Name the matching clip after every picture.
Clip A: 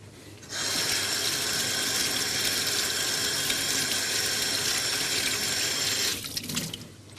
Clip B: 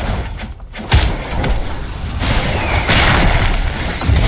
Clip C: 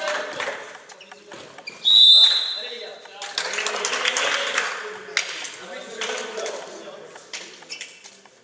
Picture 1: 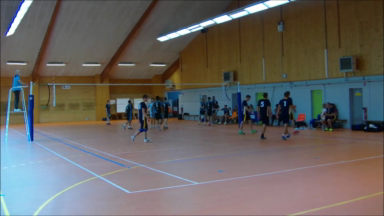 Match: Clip C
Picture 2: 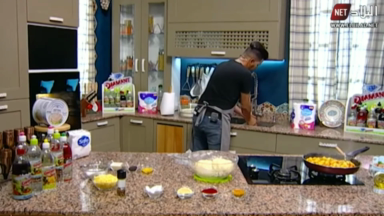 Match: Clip A